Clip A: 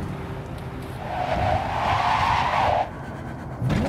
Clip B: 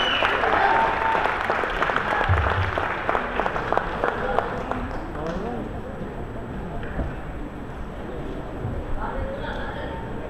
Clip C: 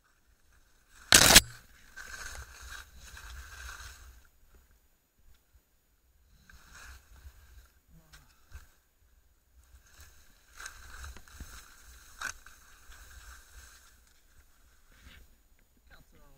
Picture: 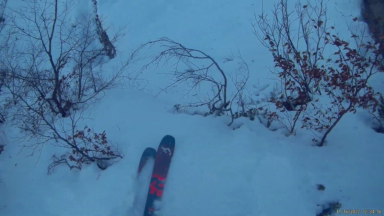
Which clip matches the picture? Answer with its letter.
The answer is C